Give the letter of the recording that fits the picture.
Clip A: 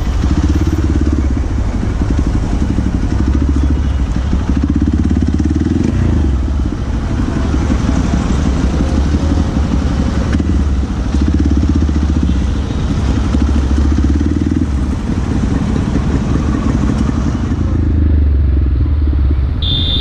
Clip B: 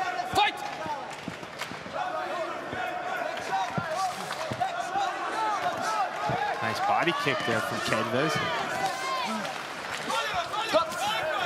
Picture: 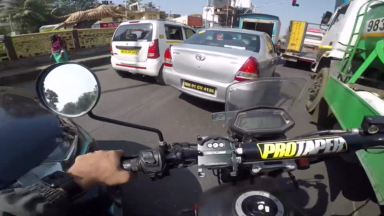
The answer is A